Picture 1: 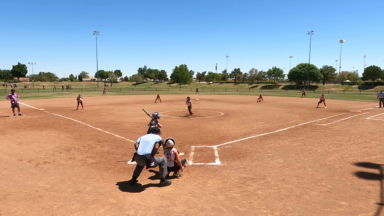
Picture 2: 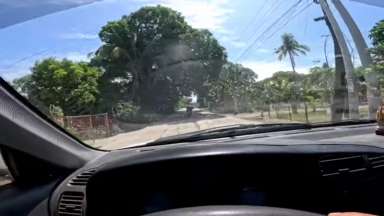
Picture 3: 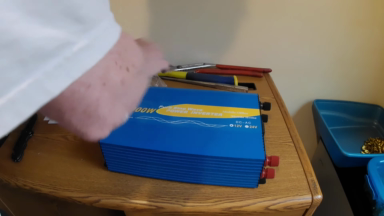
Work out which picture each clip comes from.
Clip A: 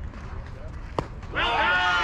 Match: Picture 1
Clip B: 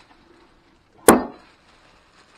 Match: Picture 3